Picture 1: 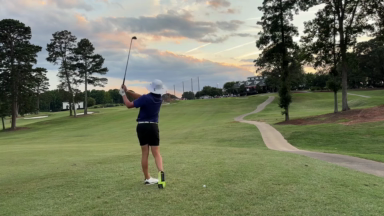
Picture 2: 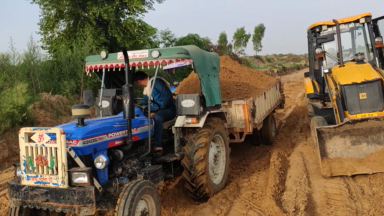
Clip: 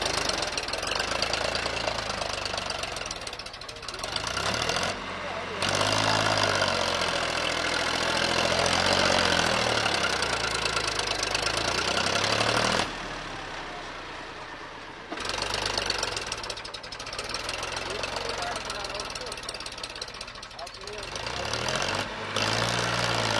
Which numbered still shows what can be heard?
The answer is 2